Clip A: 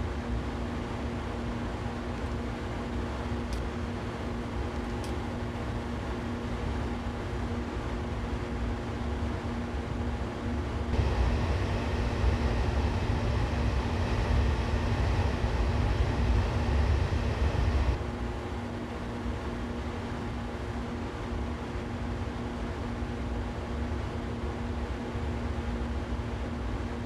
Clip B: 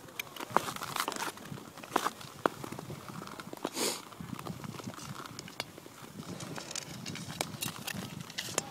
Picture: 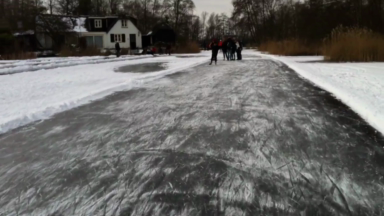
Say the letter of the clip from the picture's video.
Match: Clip B